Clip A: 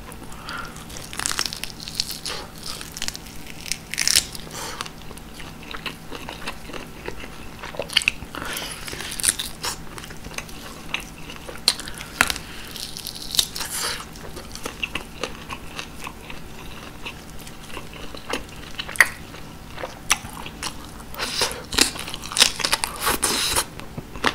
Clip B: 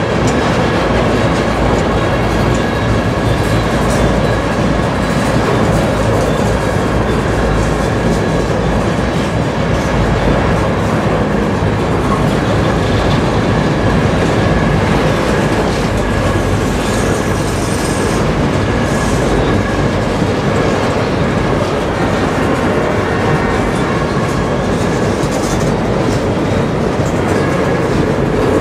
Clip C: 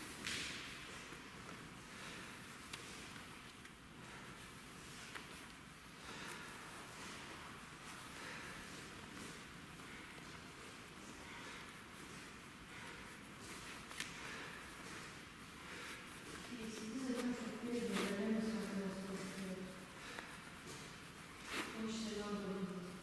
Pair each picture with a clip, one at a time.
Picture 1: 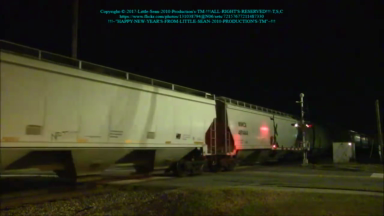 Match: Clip B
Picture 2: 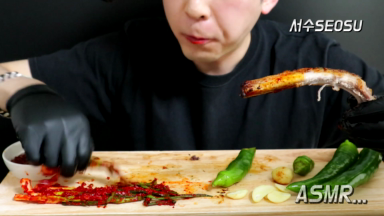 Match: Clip A